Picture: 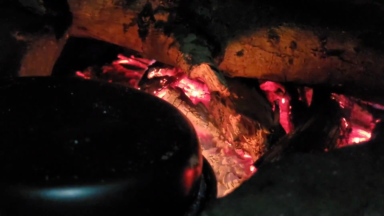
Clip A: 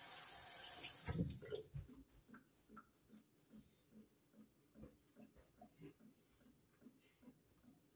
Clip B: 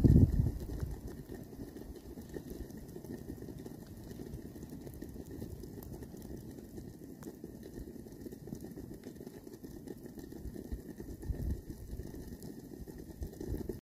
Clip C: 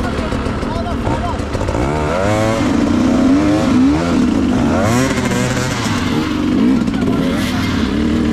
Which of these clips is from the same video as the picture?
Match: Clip B